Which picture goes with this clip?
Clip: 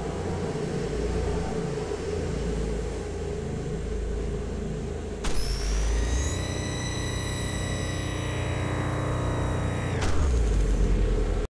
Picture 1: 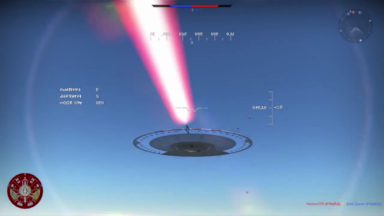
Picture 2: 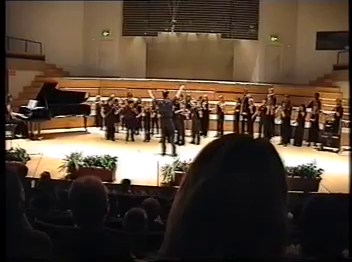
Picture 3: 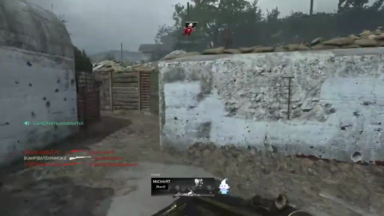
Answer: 1